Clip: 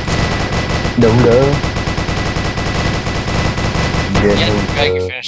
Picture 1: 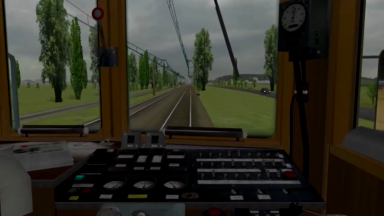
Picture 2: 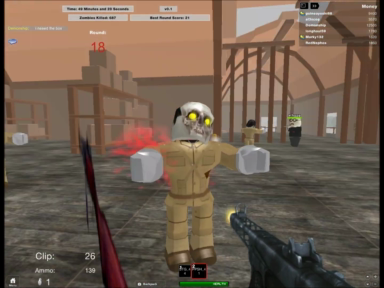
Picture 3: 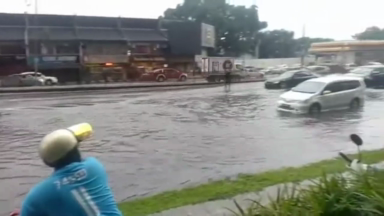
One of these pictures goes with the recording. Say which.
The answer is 2